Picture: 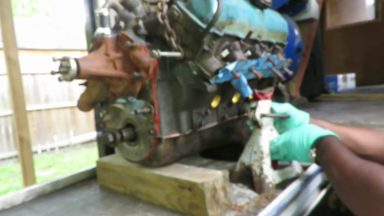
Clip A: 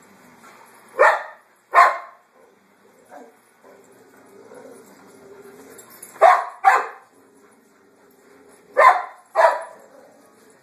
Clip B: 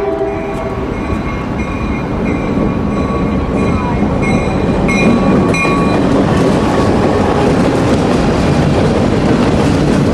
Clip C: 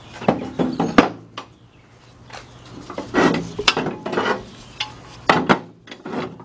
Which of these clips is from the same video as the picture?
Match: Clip C